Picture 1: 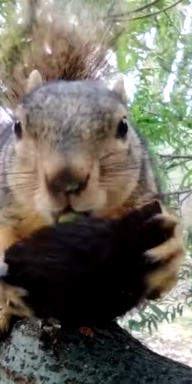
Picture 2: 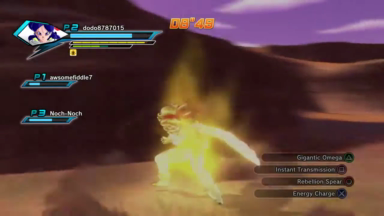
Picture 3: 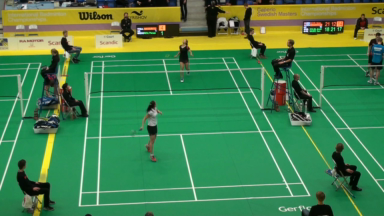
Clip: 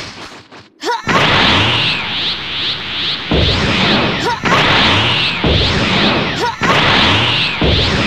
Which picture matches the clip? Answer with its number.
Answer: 2